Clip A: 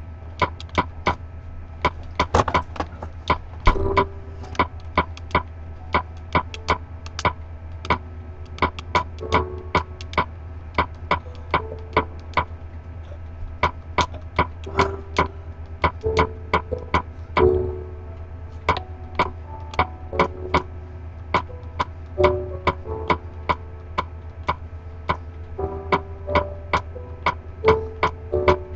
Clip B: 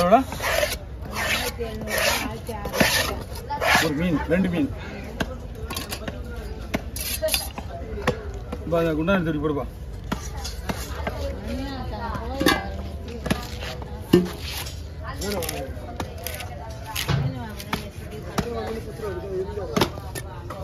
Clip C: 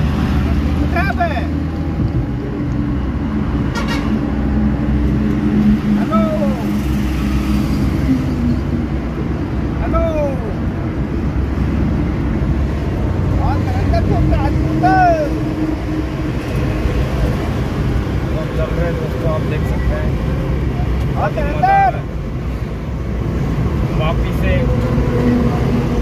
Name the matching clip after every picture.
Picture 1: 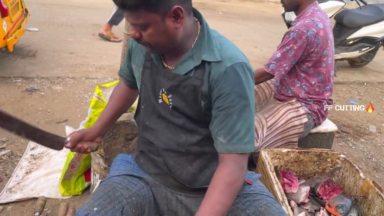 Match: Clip B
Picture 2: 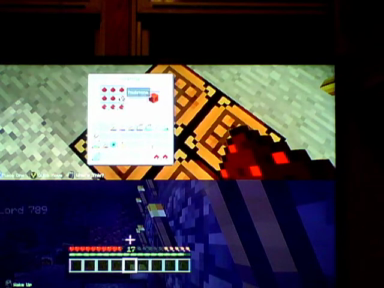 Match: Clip A